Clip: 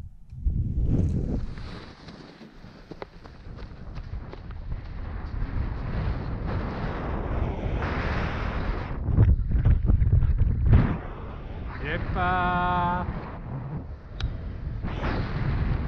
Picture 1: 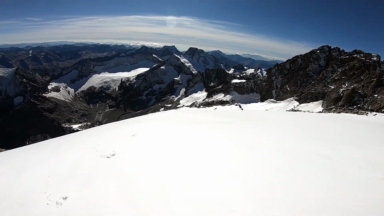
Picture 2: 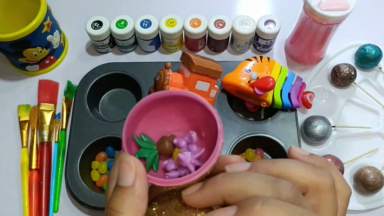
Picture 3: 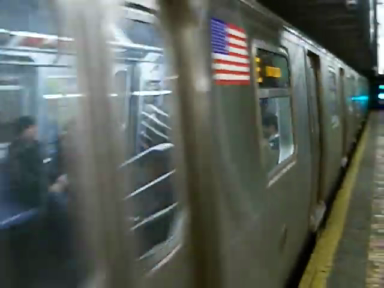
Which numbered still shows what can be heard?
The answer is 1